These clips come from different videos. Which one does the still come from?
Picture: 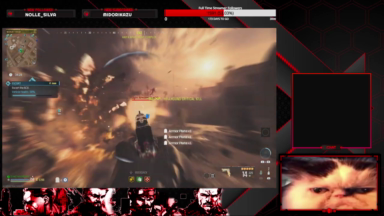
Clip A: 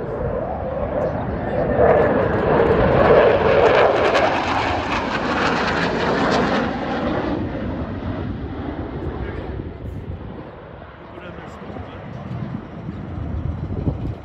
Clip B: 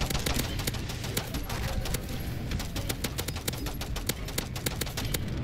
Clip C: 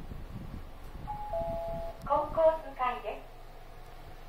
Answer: B